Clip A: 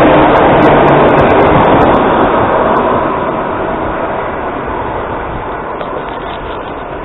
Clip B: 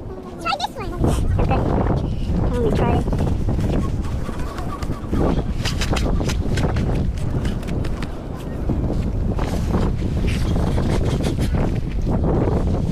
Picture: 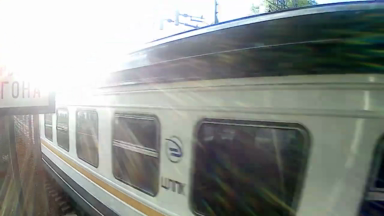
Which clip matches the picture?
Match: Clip A